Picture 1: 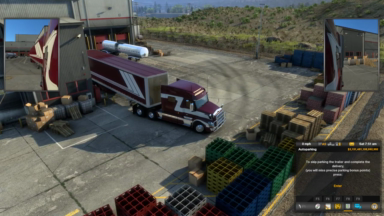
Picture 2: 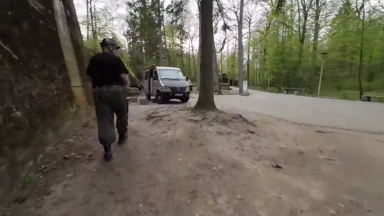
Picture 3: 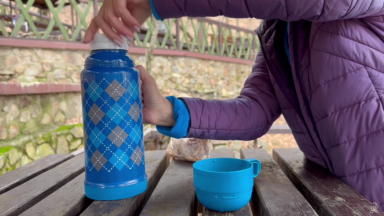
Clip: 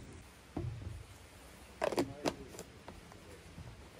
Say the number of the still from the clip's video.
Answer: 3